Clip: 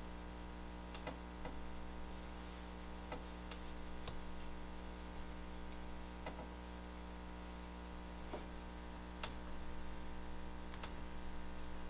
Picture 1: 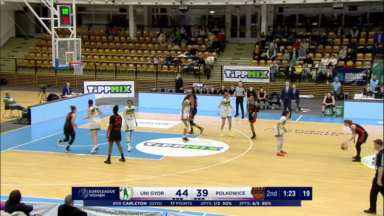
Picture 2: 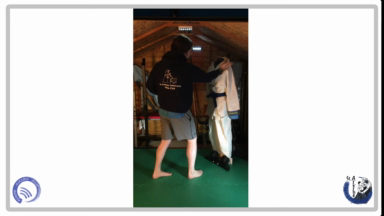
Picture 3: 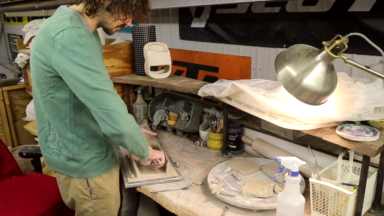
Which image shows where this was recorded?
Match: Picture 3